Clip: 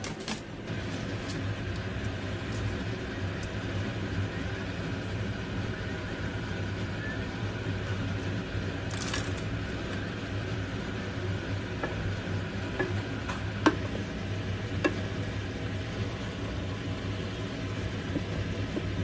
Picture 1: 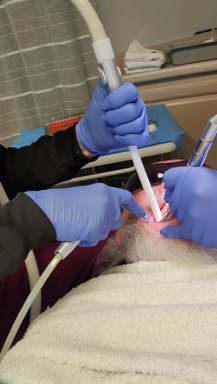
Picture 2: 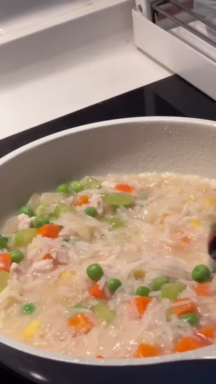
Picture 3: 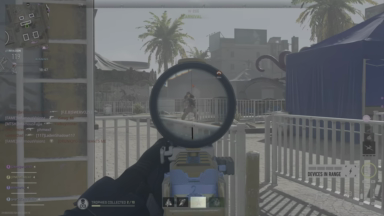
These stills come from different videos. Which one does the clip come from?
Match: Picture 2